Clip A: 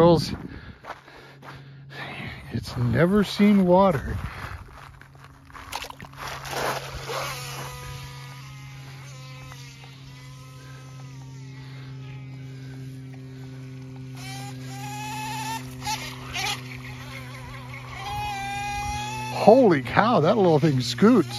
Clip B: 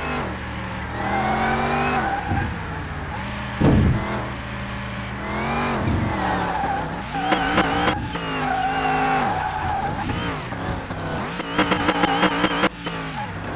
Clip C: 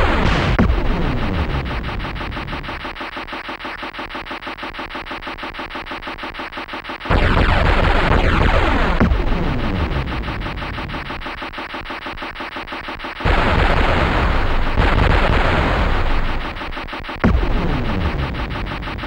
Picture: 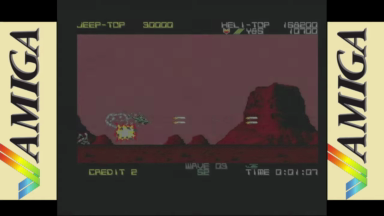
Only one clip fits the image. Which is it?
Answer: C